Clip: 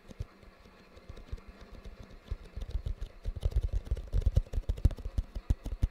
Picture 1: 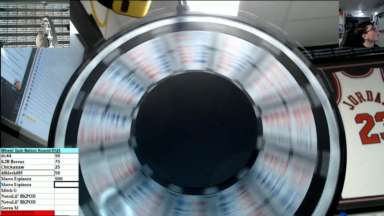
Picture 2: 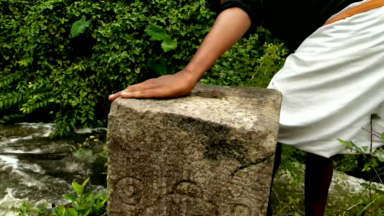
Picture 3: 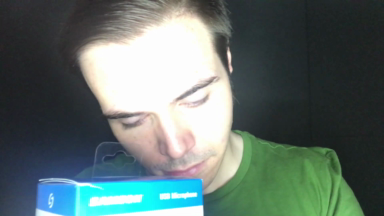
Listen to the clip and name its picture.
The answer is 3